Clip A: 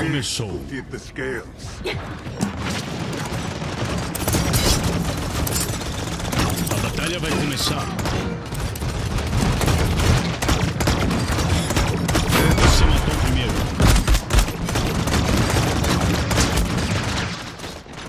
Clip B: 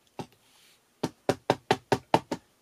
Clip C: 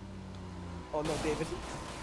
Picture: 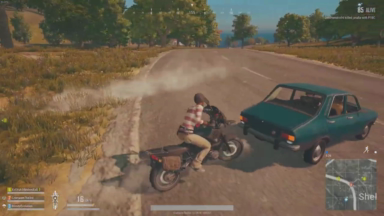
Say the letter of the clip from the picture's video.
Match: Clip C